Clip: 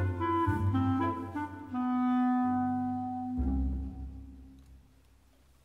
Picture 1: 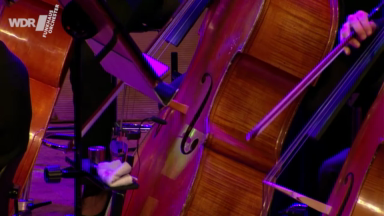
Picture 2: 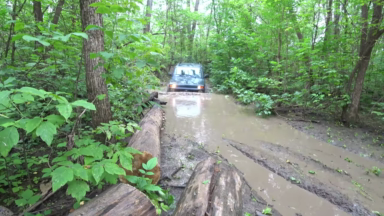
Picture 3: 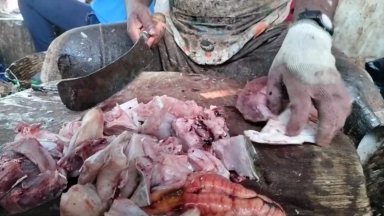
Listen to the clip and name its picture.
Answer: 1